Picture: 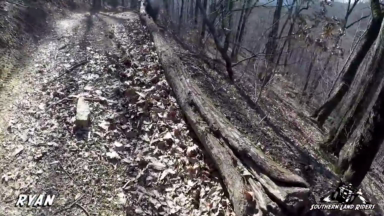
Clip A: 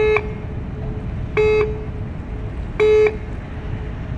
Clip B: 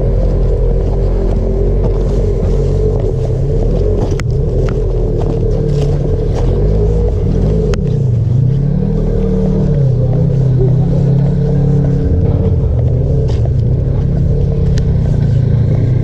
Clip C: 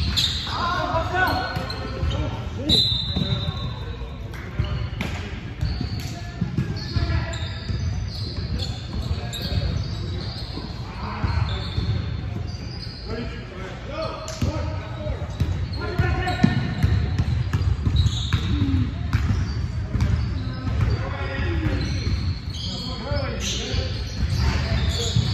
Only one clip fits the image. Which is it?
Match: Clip B